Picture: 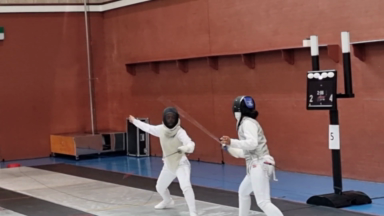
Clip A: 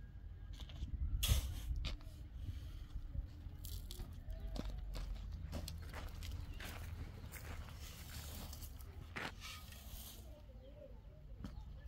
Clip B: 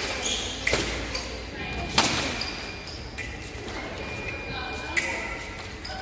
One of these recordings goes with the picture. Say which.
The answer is B